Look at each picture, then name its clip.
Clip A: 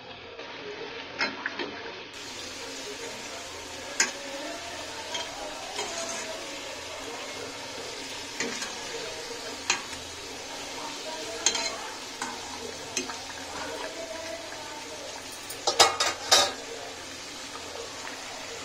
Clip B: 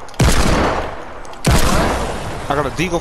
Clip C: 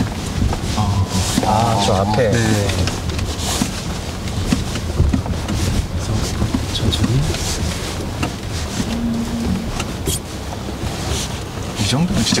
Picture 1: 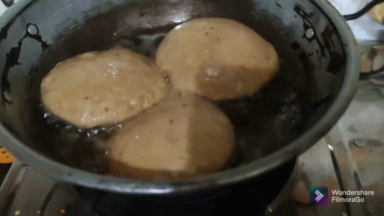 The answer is A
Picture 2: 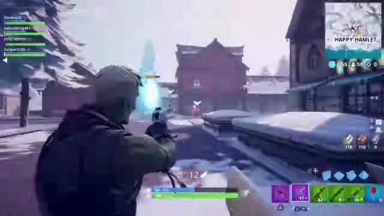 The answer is B